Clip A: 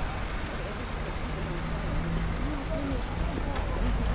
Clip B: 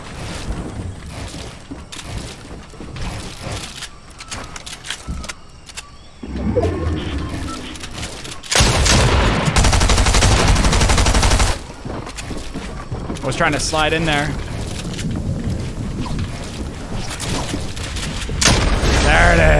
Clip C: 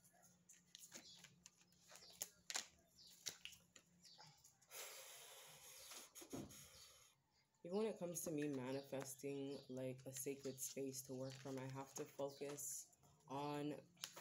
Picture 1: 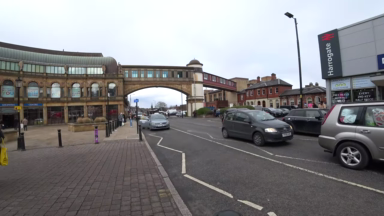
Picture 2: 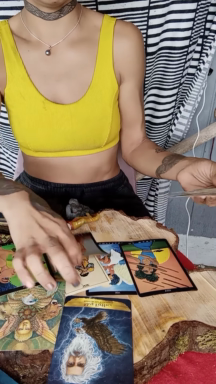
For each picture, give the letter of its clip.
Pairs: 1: A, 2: C